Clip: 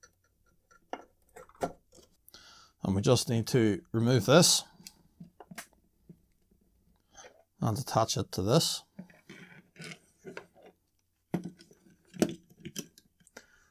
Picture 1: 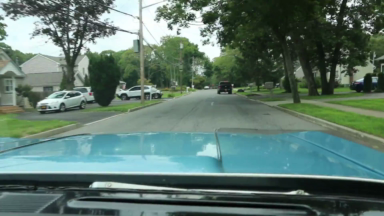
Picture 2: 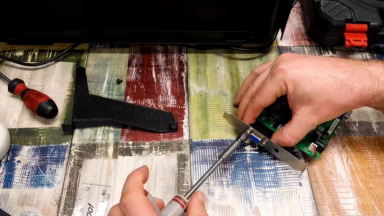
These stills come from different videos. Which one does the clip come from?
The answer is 2